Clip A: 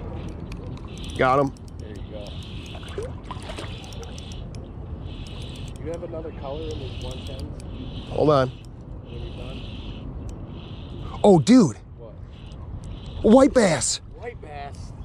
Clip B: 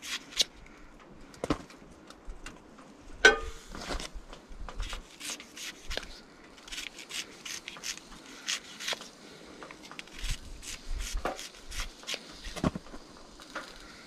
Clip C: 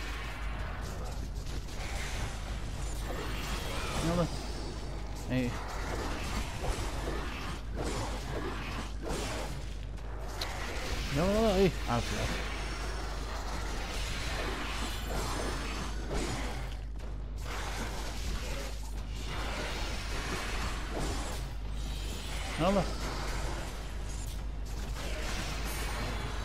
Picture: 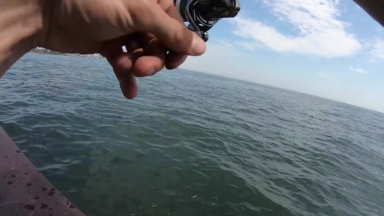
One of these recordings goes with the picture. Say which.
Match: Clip A